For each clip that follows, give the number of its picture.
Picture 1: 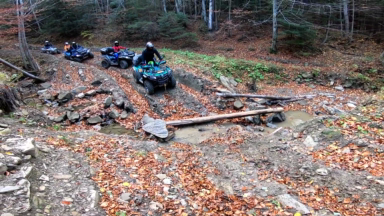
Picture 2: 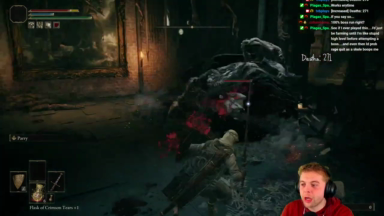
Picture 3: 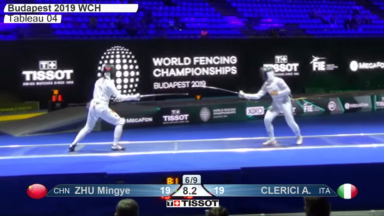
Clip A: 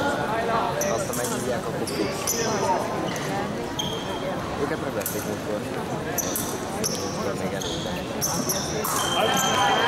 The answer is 3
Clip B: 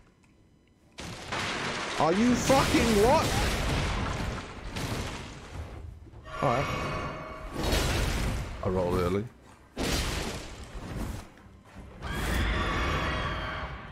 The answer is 2